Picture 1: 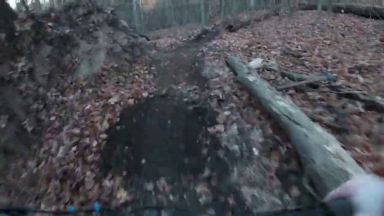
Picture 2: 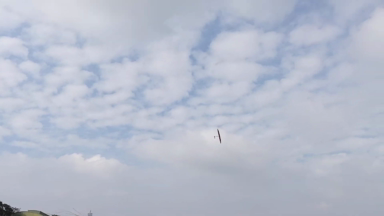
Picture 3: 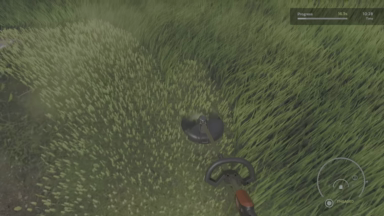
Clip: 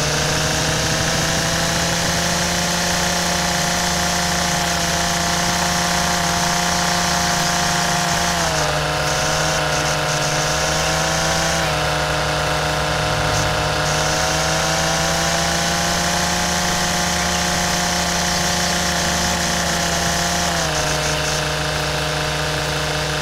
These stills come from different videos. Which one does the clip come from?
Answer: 3